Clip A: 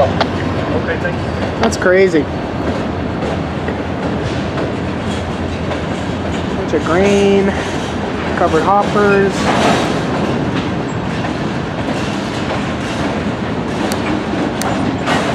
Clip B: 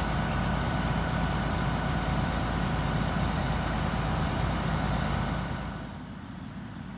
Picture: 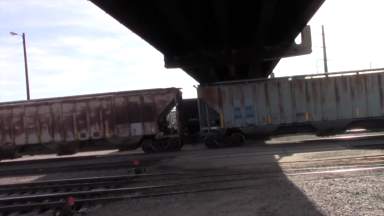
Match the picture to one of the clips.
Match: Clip A